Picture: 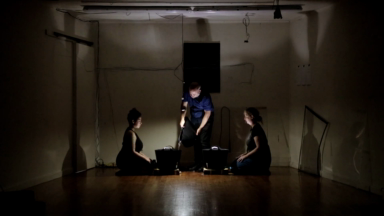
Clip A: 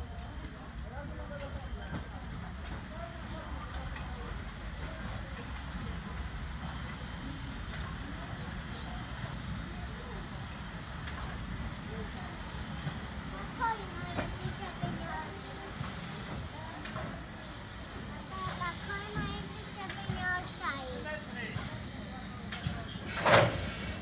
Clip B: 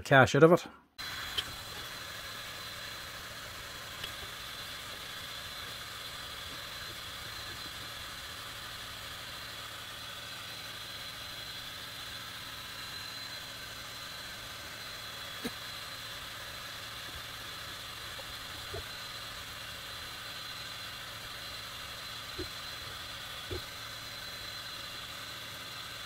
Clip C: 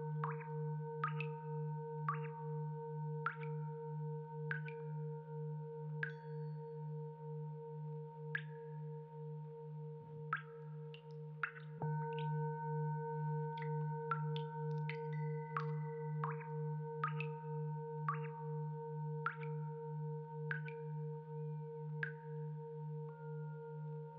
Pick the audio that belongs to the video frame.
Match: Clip C